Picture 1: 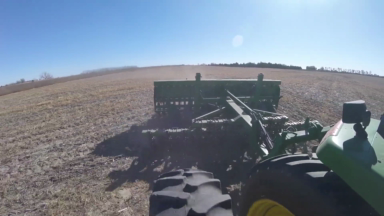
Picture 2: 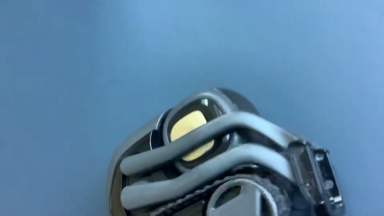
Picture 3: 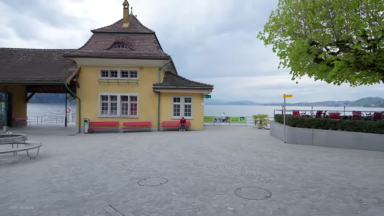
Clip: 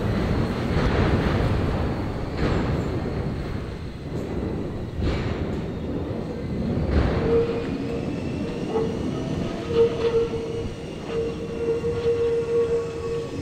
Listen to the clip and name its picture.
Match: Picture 3